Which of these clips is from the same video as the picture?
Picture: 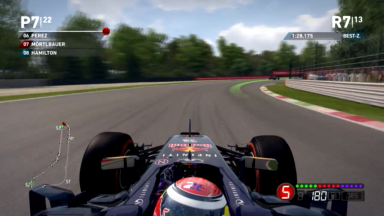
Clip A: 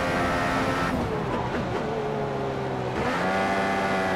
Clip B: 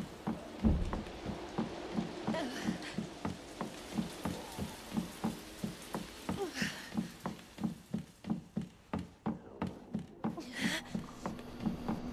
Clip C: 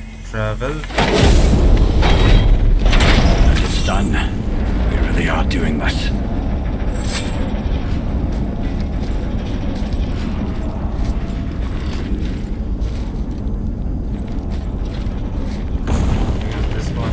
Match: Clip A